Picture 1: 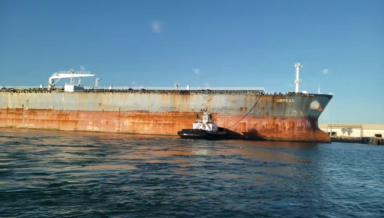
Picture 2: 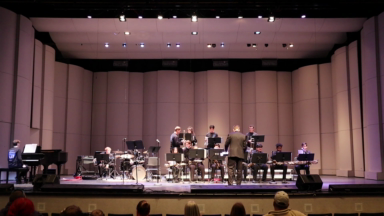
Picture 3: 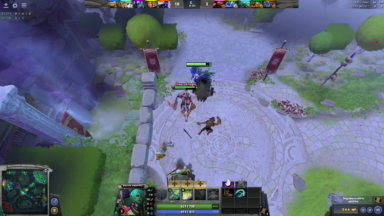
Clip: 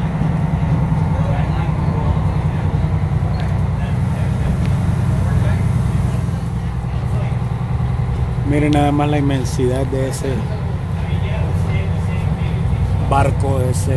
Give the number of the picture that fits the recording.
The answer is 1